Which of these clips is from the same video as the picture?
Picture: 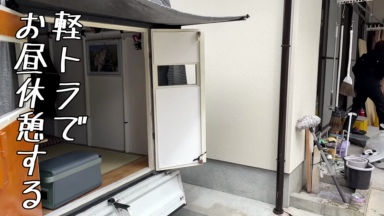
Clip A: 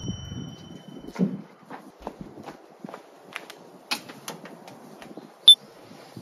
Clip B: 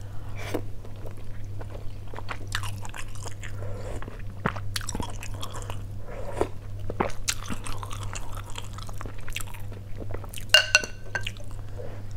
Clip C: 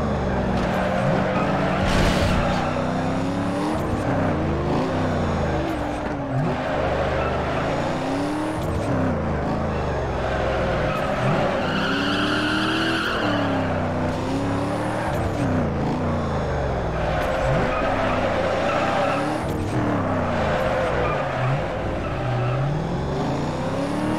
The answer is A